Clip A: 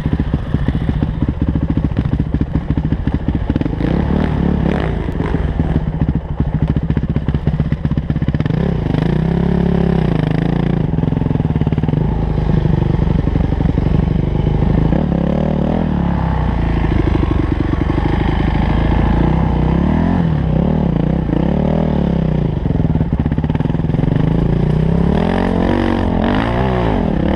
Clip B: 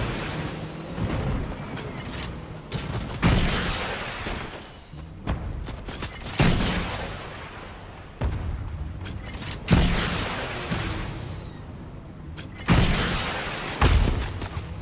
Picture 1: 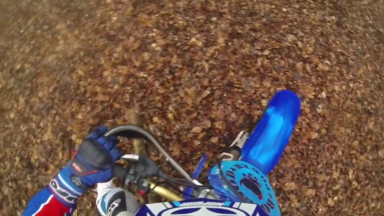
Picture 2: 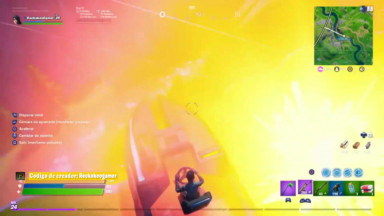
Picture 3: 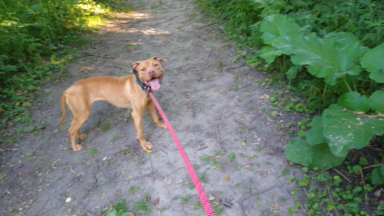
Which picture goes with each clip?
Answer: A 1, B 2